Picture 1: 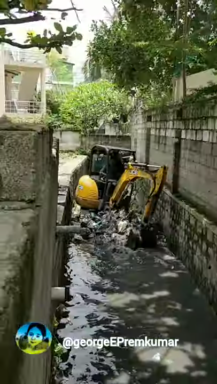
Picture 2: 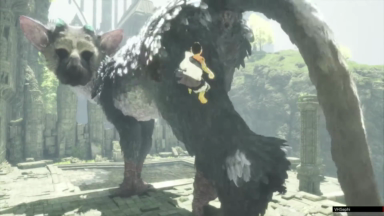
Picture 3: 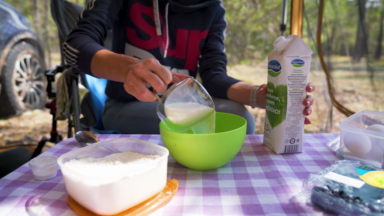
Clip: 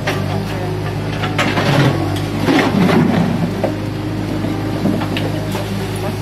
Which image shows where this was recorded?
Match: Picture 1